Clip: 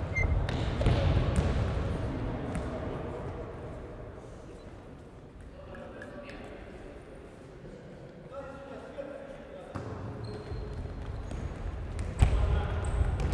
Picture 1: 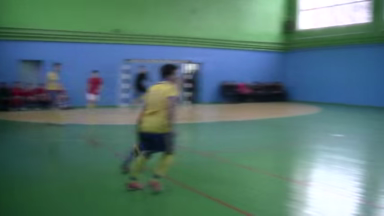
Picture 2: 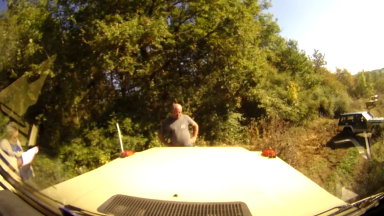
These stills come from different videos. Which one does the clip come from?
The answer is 1